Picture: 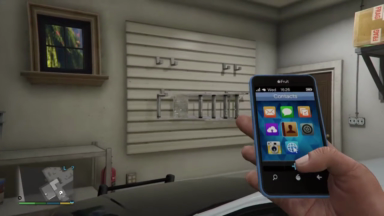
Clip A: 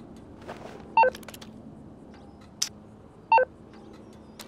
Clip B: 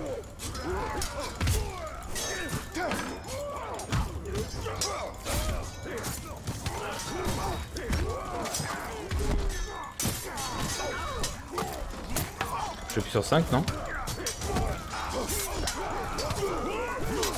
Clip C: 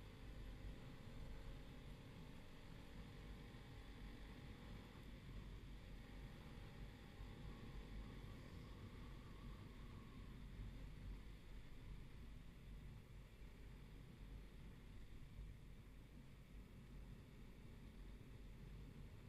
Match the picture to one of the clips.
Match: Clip A